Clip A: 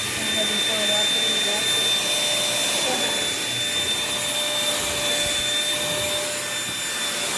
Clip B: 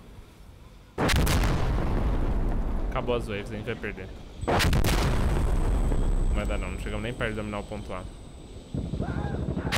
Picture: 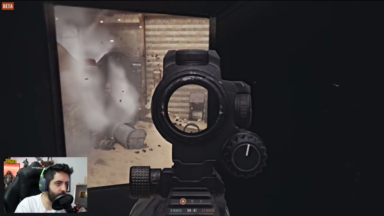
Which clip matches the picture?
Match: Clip B